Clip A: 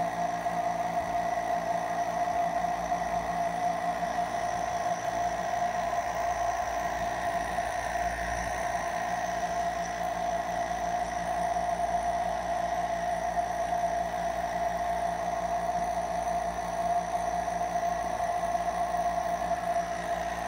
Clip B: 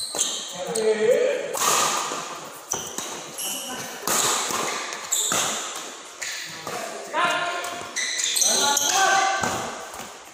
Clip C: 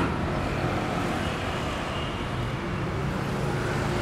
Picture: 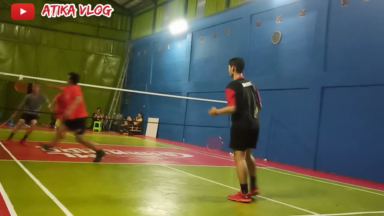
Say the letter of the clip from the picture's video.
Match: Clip B